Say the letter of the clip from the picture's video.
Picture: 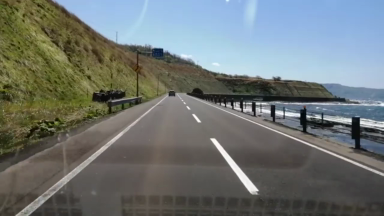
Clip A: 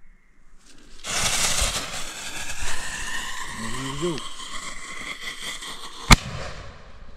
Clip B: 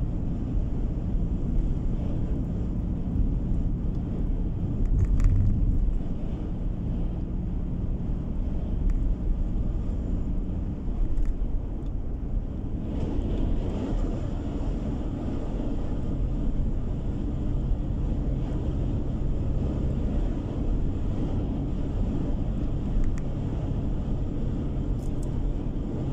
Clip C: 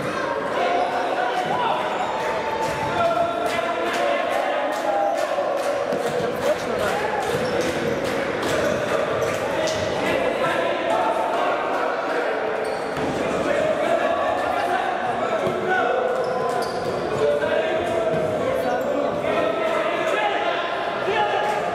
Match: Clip B